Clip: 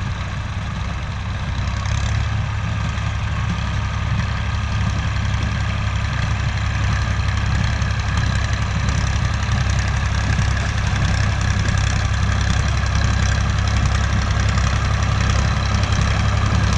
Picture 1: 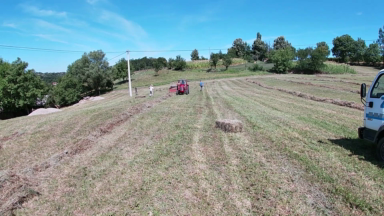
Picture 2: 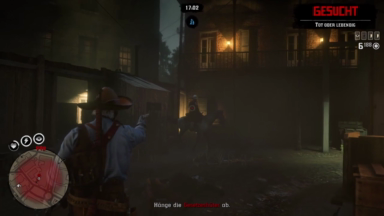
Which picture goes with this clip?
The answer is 1